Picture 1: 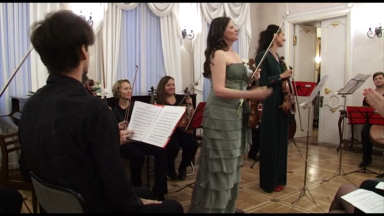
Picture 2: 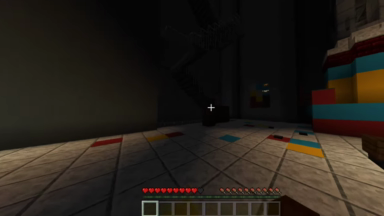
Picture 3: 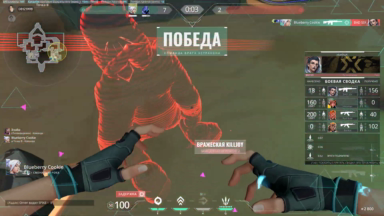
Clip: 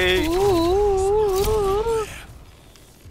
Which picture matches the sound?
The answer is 3